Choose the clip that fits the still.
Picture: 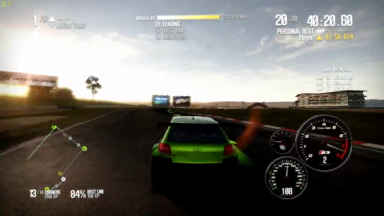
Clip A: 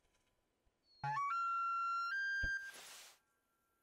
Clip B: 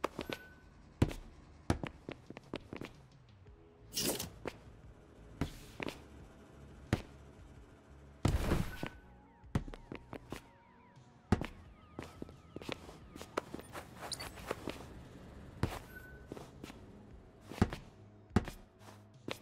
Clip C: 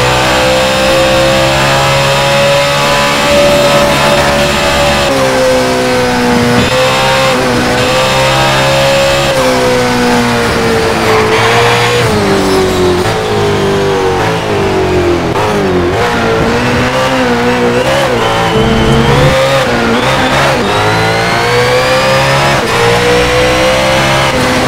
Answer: C